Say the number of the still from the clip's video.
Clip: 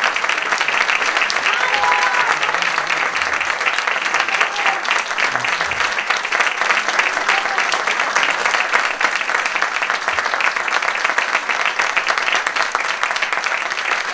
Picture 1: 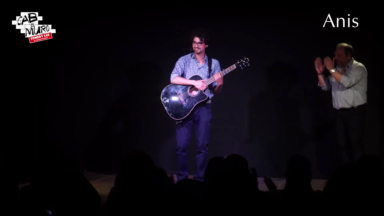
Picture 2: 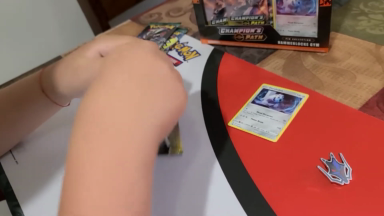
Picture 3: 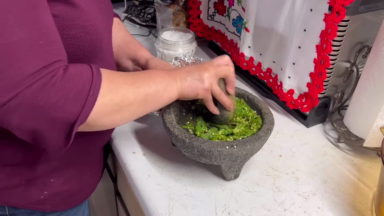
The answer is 1